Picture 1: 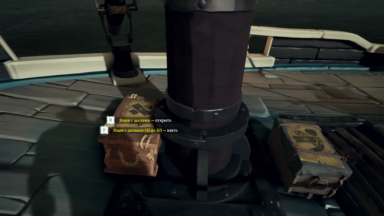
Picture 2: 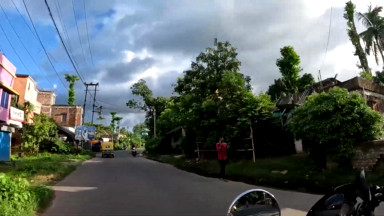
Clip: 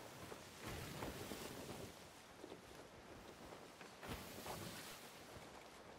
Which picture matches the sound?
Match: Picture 1